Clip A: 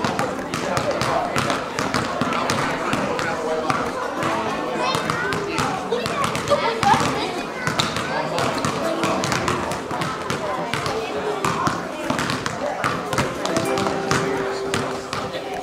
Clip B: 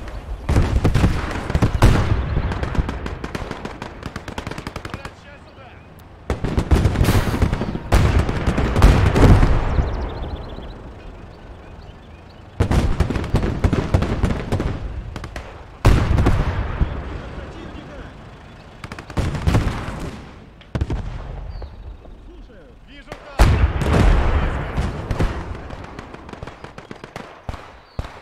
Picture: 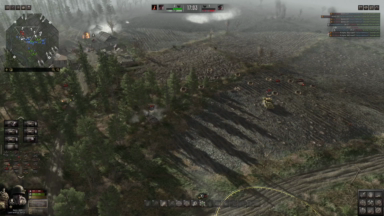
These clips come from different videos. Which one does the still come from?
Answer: B